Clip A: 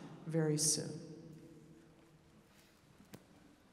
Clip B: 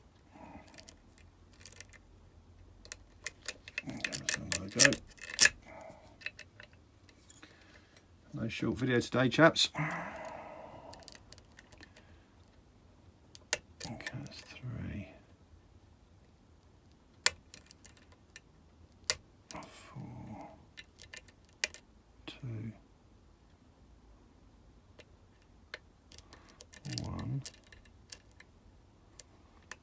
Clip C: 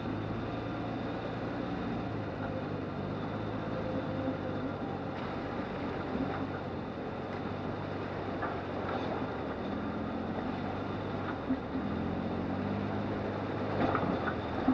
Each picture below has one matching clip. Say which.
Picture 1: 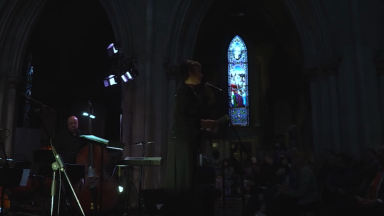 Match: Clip A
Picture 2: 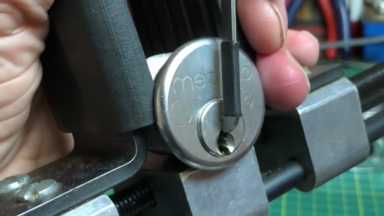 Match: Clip B